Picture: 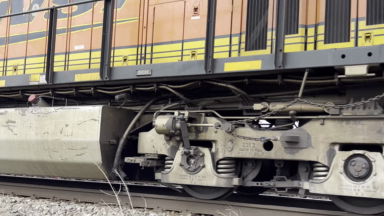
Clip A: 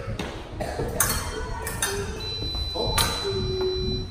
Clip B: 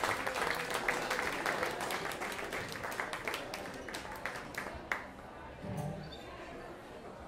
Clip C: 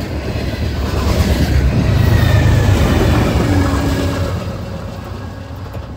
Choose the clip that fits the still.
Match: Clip C